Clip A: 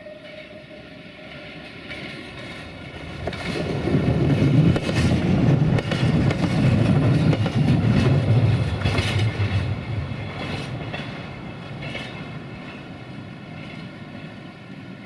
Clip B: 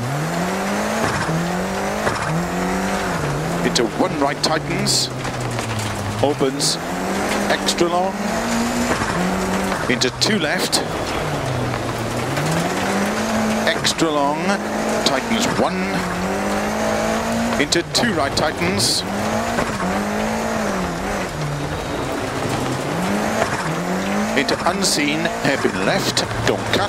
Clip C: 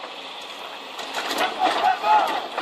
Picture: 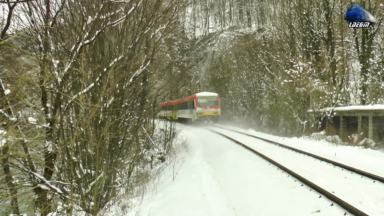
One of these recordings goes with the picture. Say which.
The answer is A